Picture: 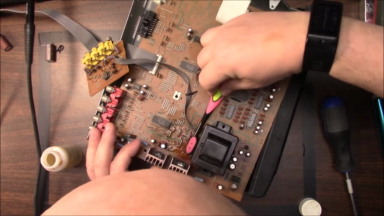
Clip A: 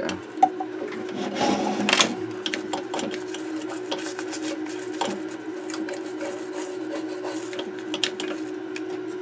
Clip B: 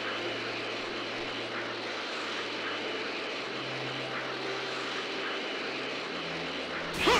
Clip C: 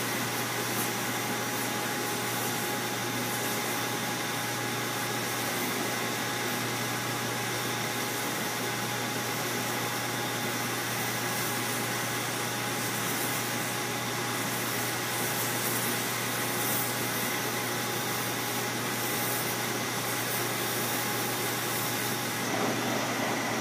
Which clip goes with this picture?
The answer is A